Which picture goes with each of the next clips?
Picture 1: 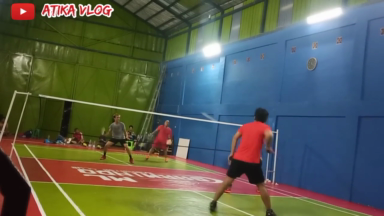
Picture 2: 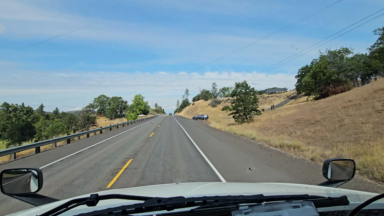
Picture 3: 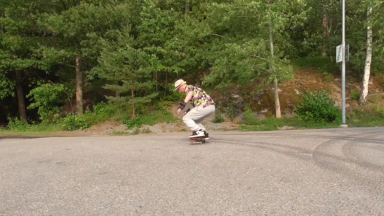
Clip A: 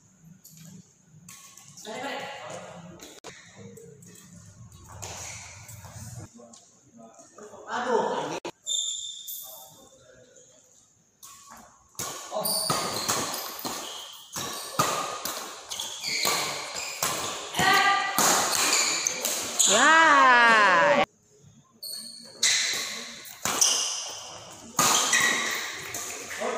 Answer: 1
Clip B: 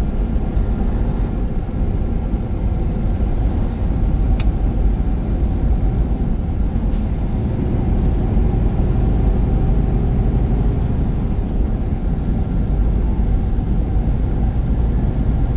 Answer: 2